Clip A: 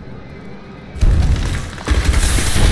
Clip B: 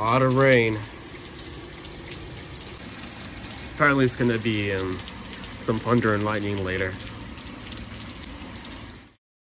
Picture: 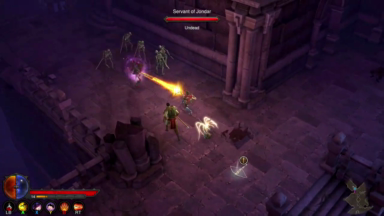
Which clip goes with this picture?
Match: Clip A